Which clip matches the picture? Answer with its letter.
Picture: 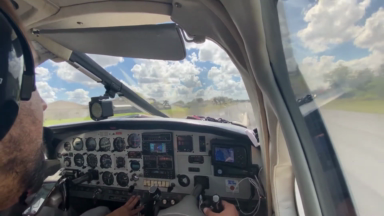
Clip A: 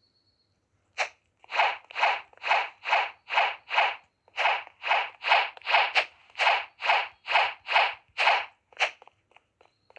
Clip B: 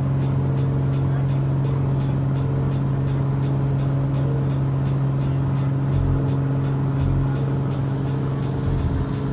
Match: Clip B